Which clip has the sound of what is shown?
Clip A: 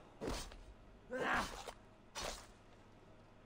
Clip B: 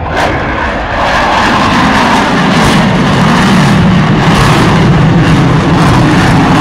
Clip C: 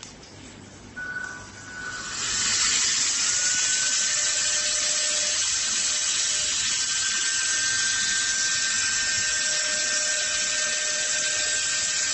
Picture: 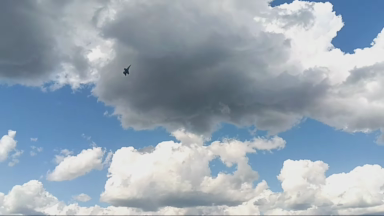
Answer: B